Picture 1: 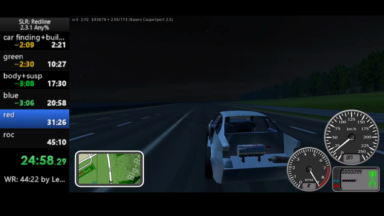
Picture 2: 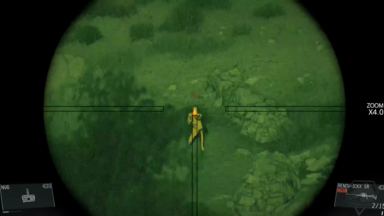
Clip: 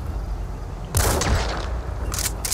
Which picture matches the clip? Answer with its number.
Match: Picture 2